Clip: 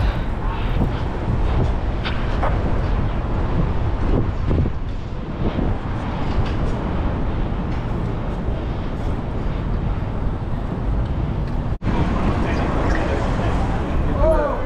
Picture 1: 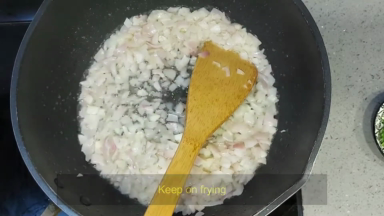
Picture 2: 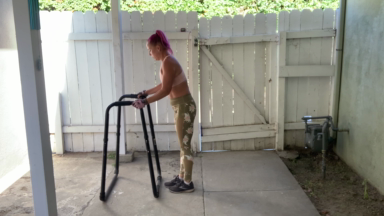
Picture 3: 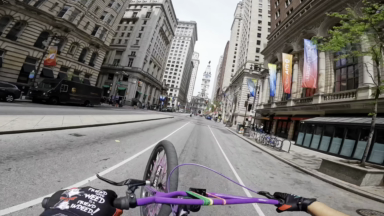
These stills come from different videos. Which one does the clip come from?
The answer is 3